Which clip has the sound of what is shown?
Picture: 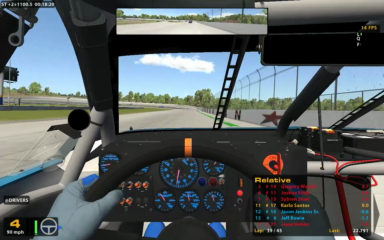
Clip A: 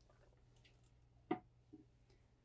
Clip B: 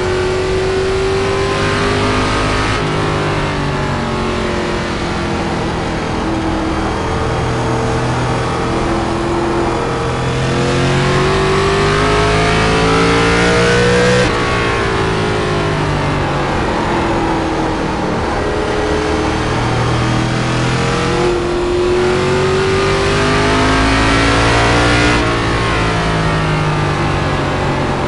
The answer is B